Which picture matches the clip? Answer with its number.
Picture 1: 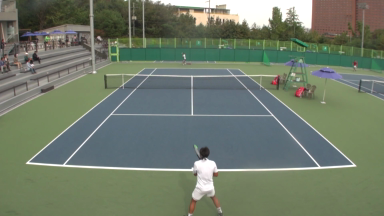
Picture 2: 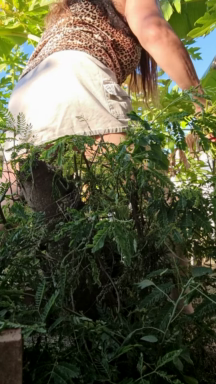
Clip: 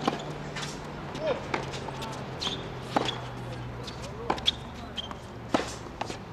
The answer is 1